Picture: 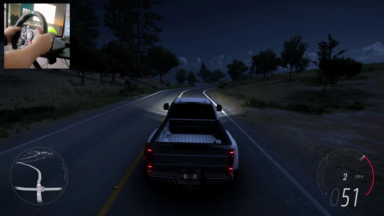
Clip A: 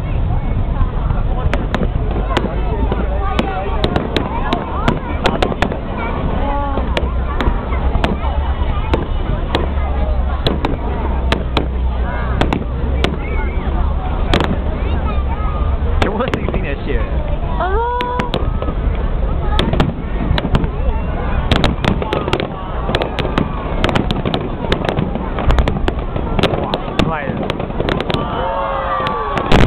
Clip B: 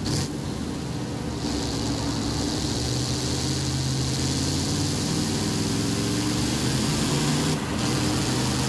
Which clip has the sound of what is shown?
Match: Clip B